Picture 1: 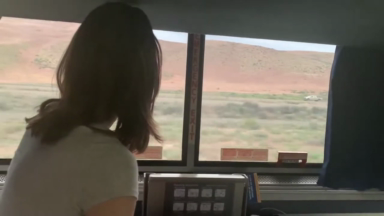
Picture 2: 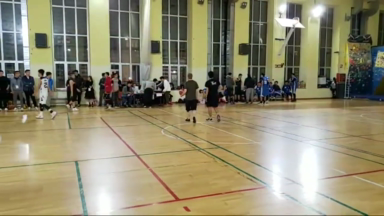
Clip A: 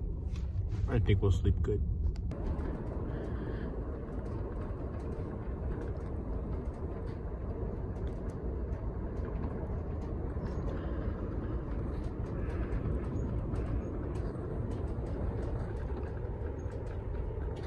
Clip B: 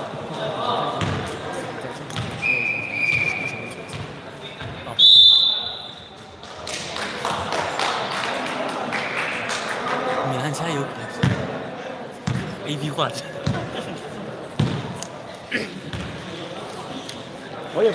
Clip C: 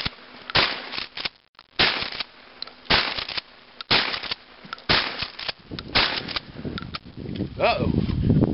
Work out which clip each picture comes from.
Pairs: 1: A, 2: B